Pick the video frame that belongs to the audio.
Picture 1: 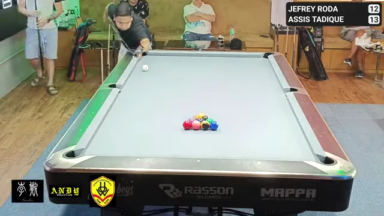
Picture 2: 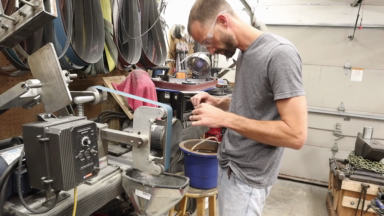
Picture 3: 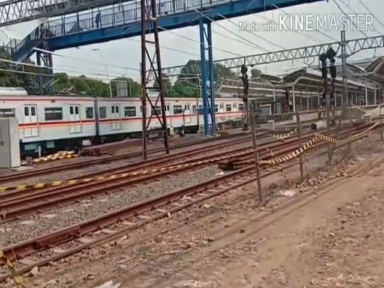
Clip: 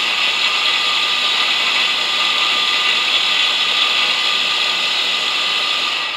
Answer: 2